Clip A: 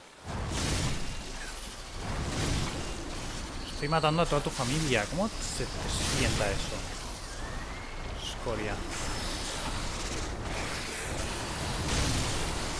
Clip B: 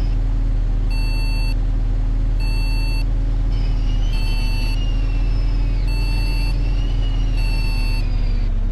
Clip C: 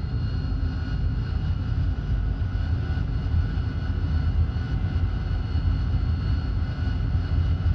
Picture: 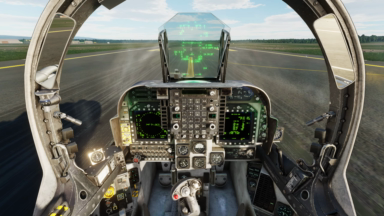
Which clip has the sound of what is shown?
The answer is C